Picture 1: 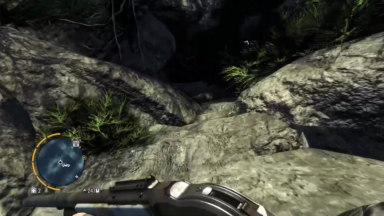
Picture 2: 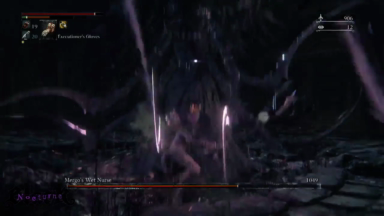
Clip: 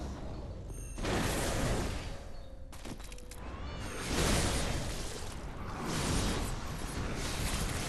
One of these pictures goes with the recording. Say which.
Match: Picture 2